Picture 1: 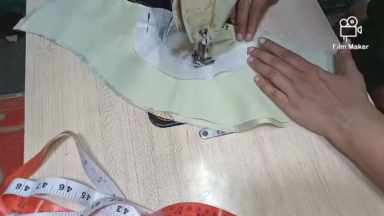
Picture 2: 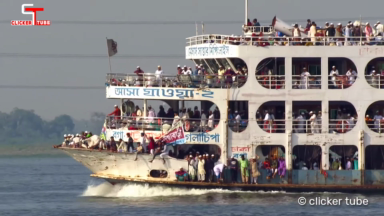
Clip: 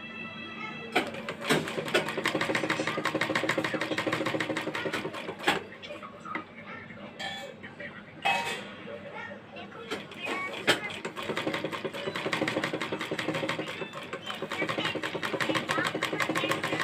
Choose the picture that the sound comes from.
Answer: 1